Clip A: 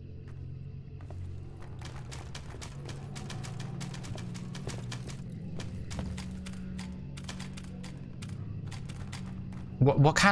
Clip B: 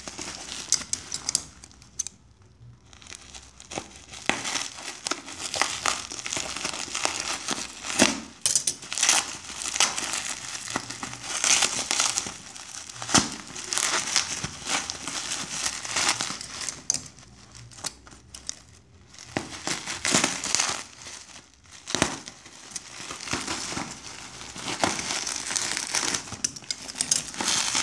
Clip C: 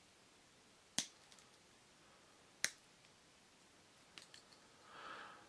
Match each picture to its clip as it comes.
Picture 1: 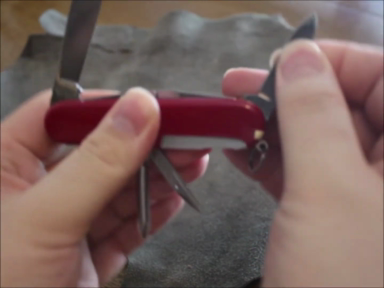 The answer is C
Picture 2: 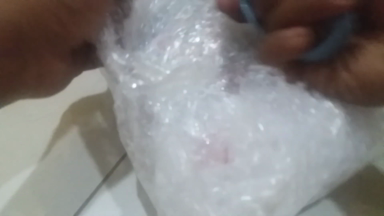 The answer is B